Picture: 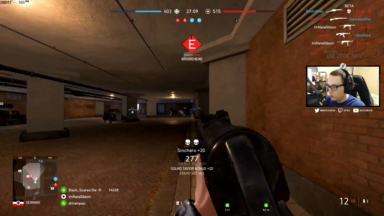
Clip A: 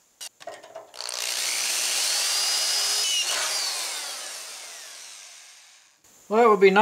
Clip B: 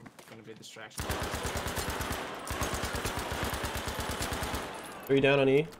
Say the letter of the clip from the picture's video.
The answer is B